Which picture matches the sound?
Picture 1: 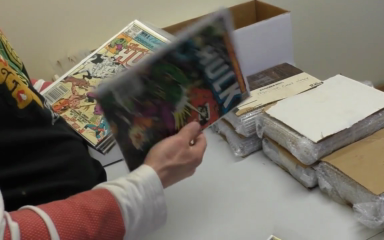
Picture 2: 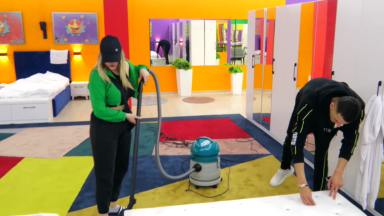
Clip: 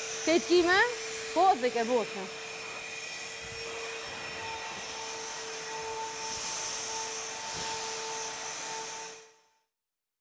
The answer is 2